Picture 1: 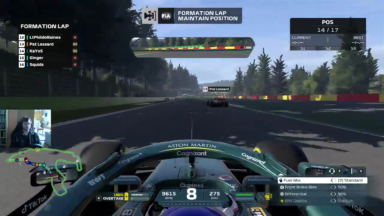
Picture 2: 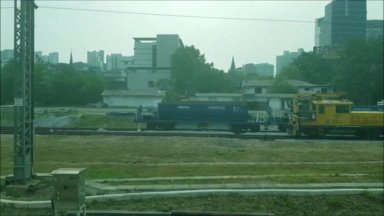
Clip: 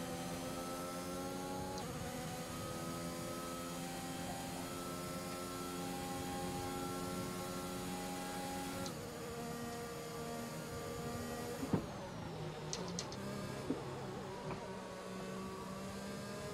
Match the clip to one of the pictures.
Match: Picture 1